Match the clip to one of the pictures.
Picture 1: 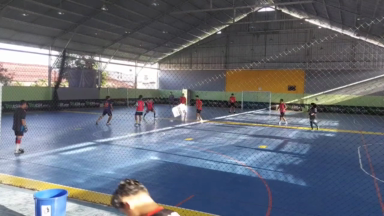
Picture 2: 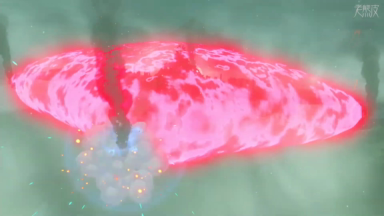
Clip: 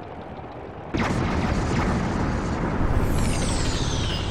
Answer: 2